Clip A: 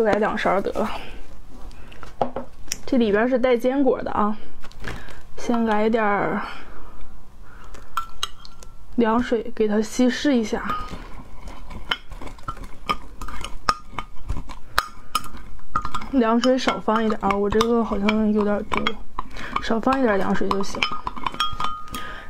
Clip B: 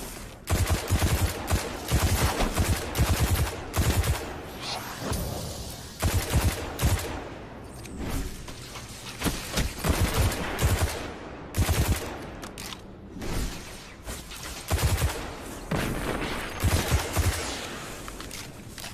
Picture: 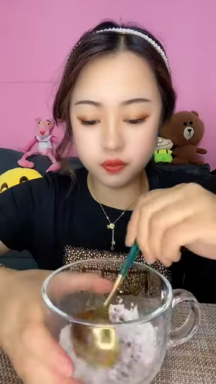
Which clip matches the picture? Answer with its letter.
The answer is A